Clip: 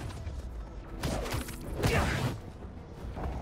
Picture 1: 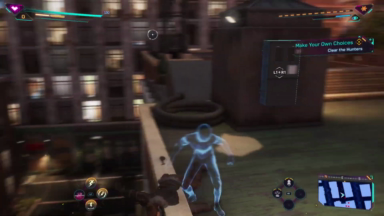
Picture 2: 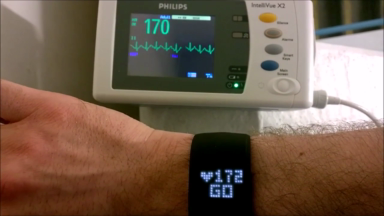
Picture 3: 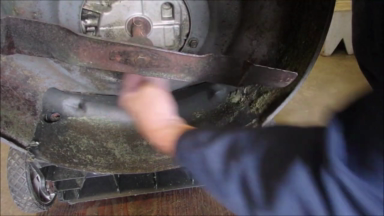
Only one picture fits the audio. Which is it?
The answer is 1